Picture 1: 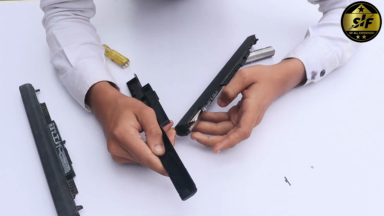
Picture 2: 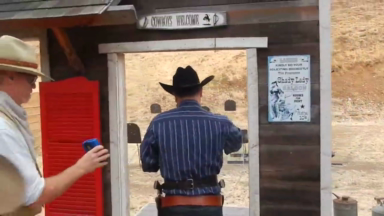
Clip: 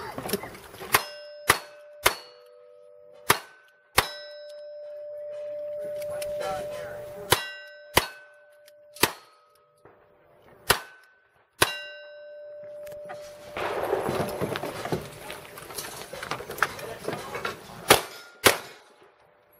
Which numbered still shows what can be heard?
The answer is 2